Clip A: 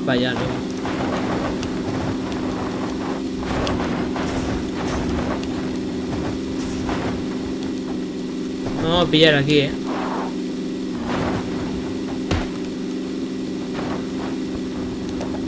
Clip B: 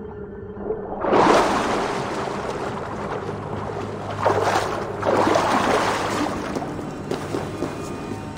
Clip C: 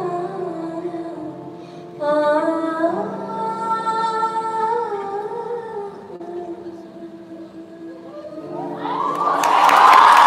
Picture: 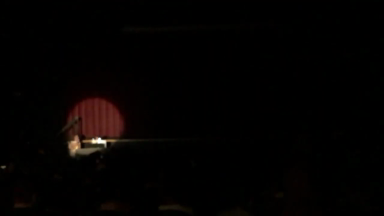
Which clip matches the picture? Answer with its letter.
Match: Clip C